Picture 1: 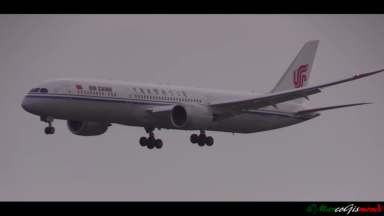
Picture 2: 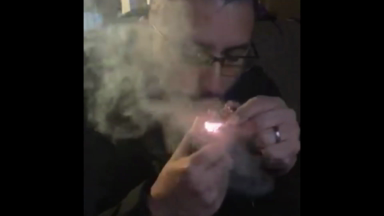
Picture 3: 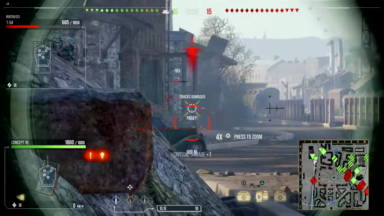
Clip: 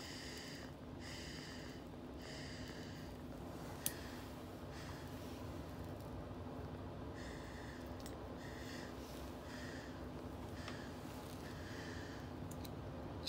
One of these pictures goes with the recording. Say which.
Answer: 2